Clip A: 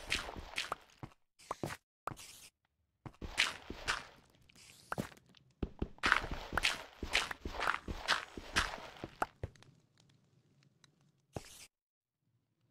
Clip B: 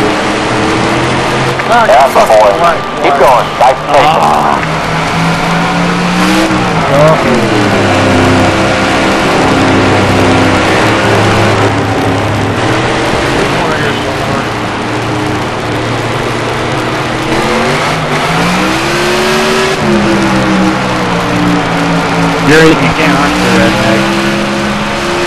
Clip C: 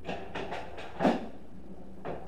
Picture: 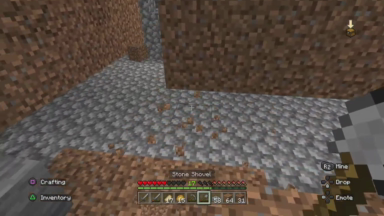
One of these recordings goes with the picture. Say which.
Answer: A